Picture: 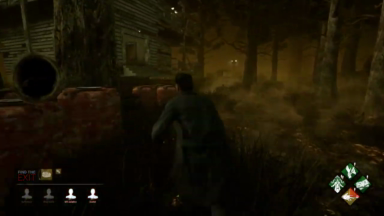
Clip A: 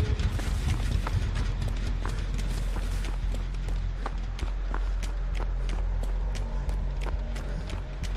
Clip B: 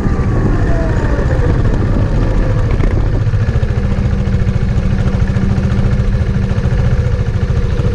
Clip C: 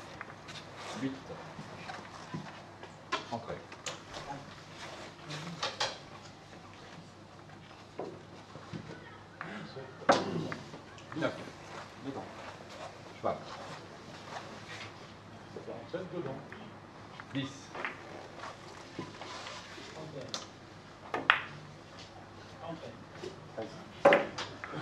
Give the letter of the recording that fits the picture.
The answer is A